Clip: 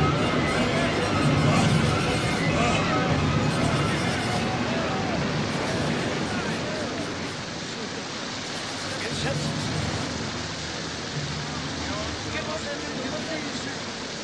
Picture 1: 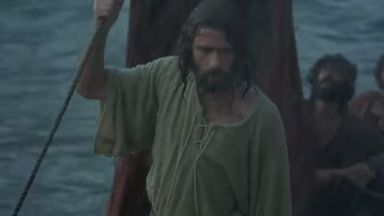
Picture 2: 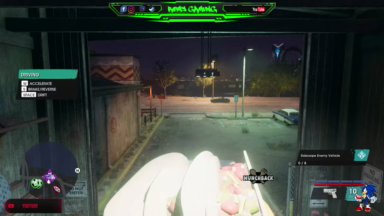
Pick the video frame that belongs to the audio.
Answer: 1